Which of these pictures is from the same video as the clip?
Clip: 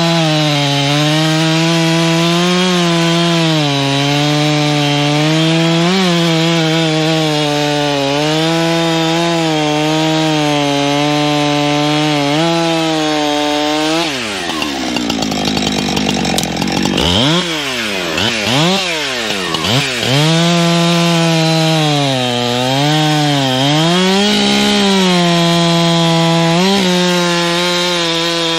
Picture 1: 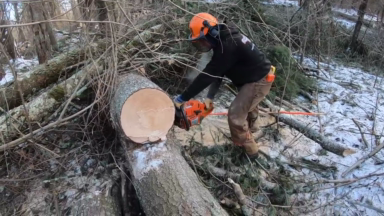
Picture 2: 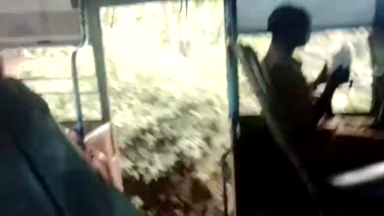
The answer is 1